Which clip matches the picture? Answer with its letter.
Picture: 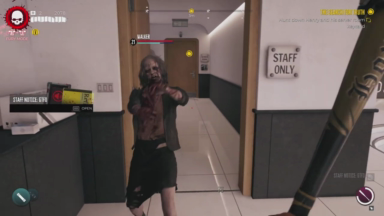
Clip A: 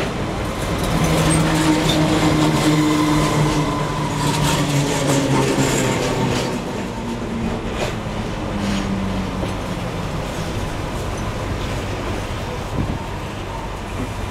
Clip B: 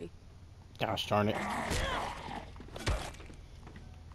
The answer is B